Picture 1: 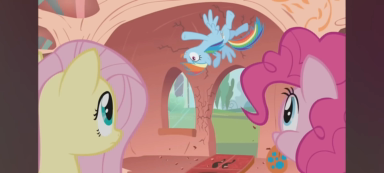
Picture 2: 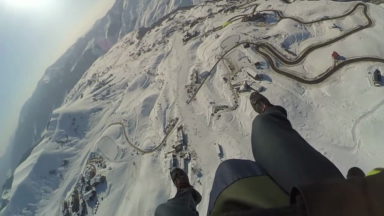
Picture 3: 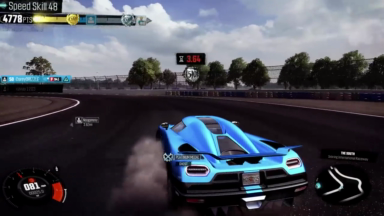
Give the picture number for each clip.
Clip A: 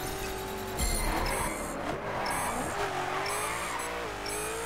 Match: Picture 3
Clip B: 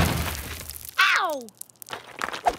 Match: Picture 1